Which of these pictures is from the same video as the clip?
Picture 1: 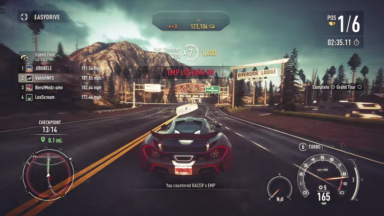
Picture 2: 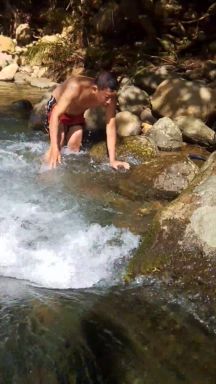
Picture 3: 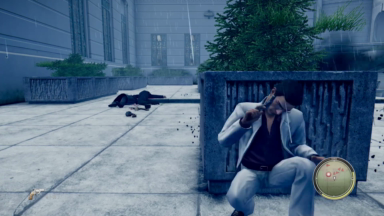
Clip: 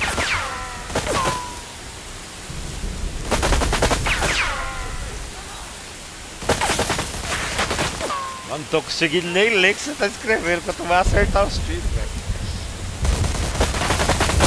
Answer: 3